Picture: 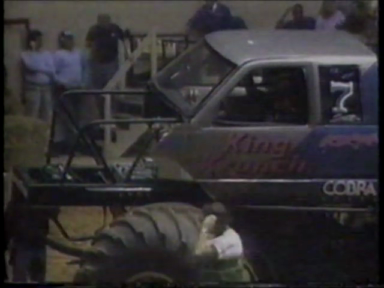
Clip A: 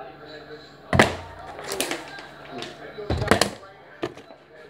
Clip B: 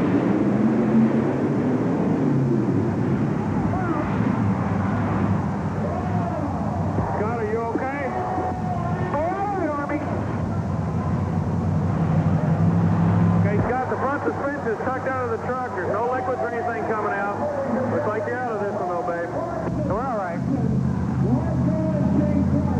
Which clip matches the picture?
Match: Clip B